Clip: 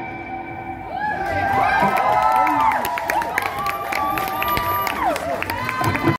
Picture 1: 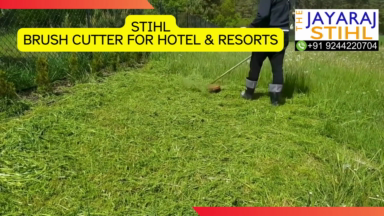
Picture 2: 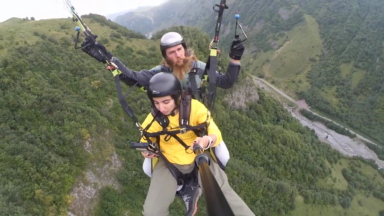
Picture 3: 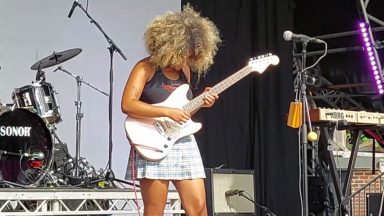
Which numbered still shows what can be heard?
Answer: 3